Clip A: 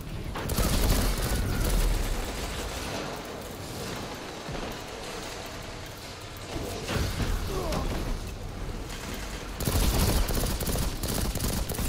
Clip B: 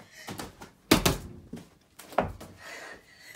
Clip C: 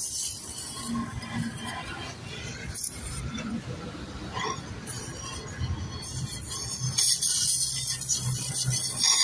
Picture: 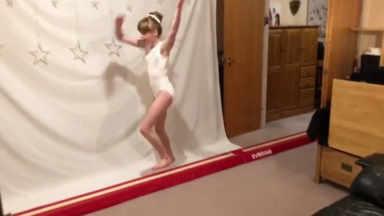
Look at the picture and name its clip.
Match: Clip B